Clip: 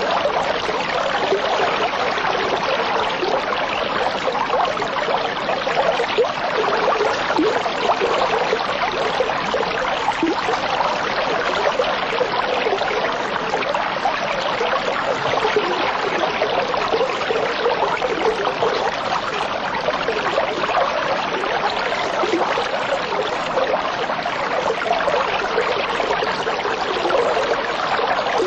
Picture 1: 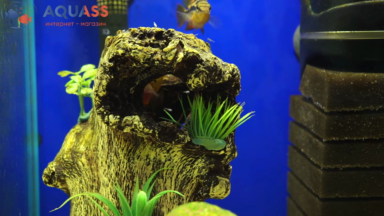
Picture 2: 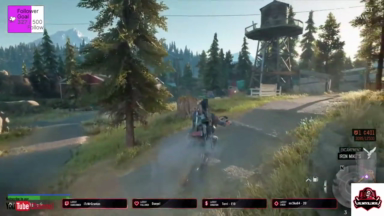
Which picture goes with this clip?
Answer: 1